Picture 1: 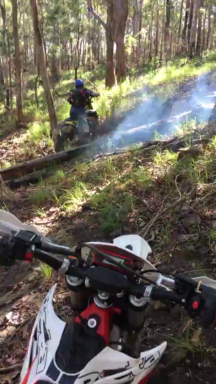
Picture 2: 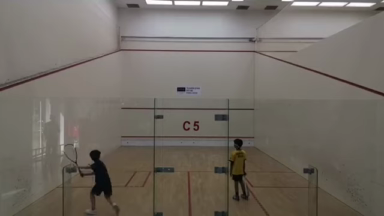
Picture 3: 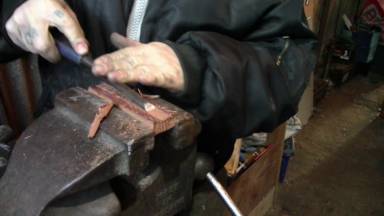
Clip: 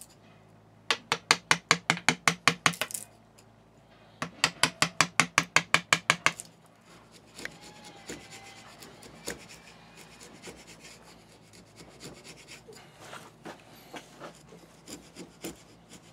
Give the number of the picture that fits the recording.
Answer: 3